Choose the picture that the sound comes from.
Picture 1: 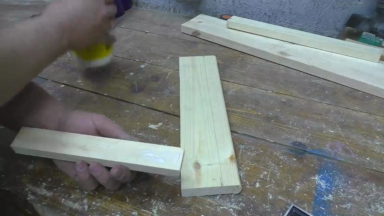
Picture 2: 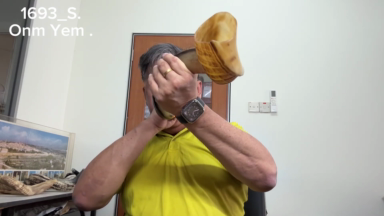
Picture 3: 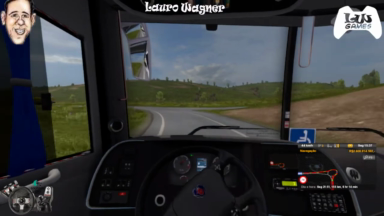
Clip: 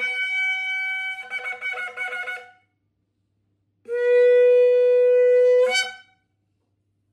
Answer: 2